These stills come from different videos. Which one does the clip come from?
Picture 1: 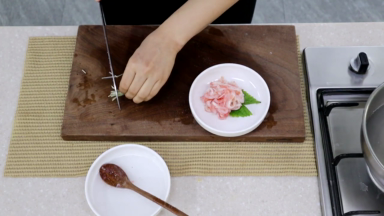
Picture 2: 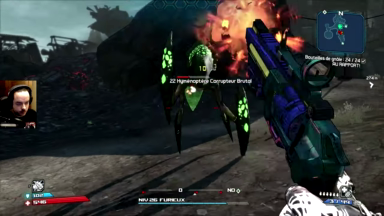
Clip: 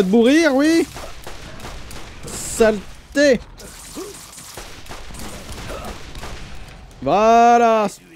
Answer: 2